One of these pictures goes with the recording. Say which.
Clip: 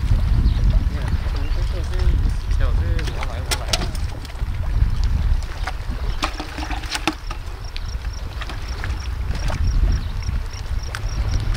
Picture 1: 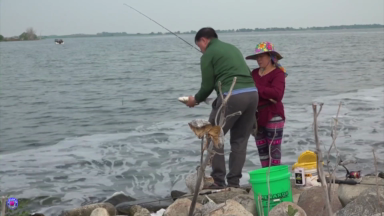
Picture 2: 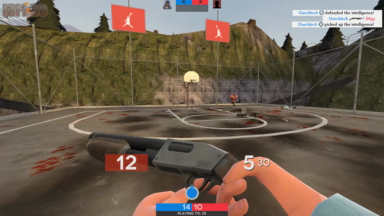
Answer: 1